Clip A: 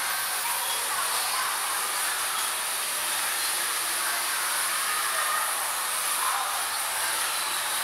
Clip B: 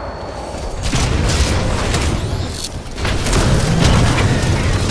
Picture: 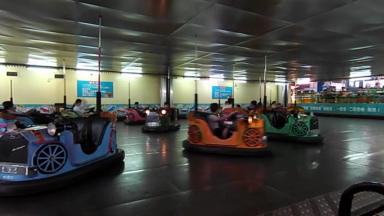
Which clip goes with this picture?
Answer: A